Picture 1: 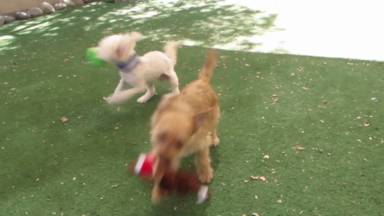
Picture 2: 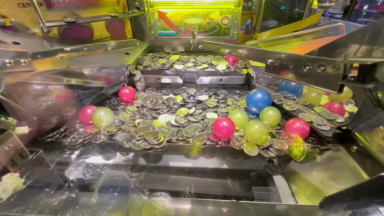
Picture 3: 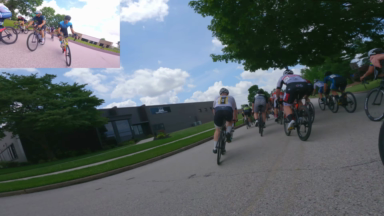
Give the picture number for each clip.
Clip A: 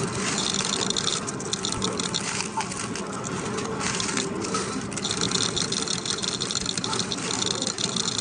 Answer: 2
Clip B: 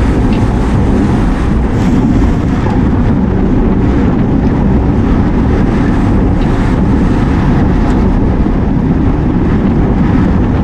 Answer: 3